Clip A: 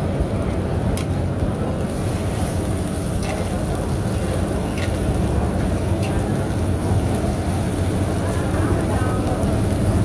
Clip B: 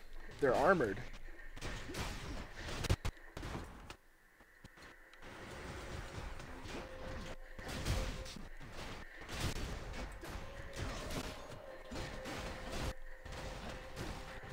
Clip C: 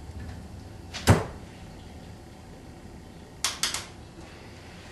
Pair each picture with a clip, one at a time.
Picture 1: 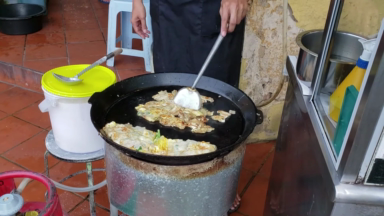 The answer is A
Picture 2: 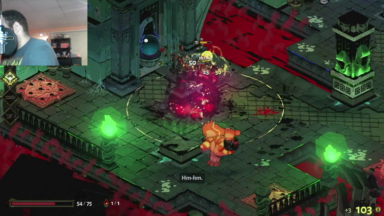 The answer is B